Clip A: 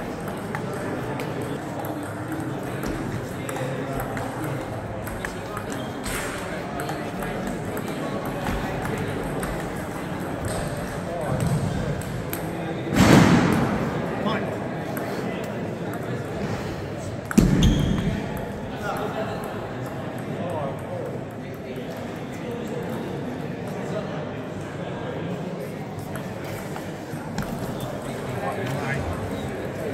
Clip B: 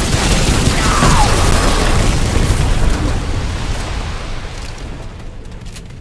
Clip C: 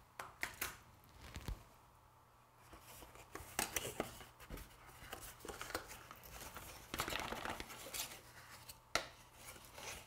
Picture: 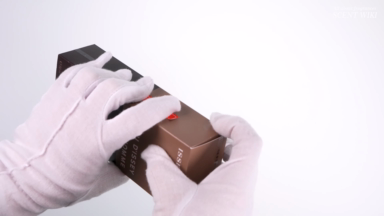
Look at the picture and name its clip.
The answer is C